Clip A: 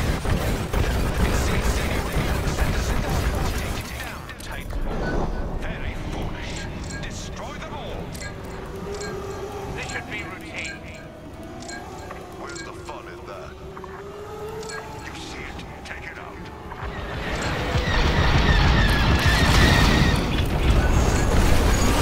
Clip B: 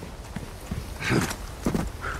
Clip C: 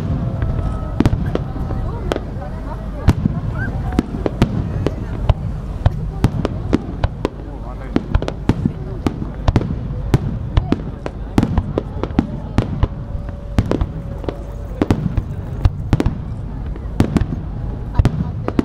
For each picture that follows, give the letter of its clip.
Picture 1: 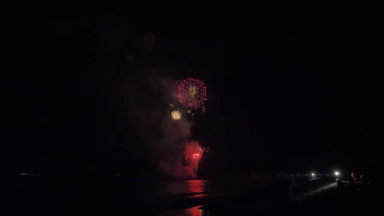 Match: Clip C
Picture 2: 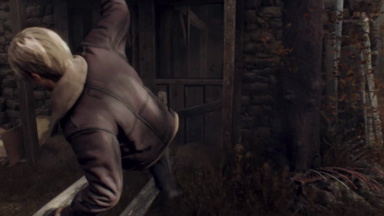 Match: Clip B